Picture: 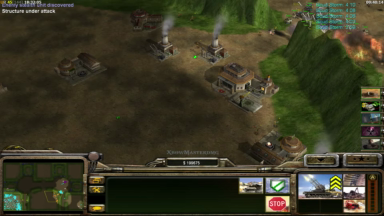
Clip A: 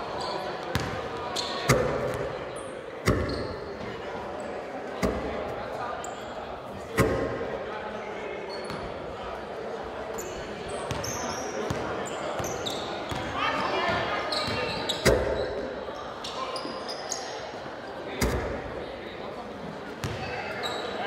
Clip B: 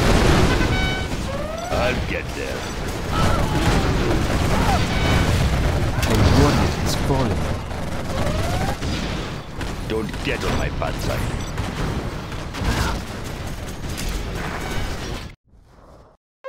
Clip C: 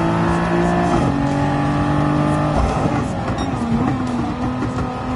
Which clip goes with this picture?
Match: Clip B